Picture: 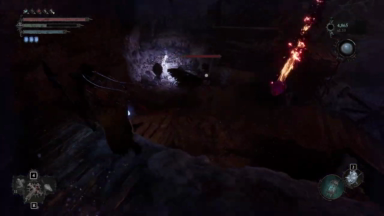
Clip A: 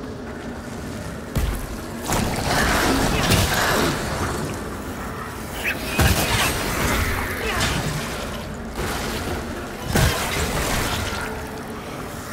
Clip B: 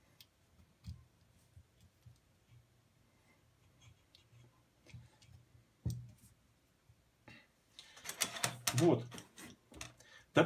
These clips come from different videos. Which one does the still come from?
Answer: A